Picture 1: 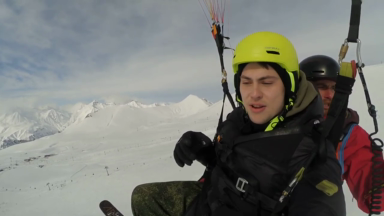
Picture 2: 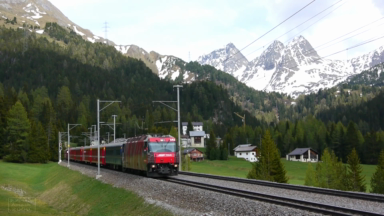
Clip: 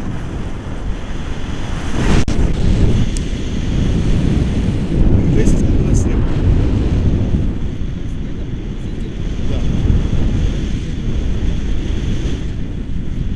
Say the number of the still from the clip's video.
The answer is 1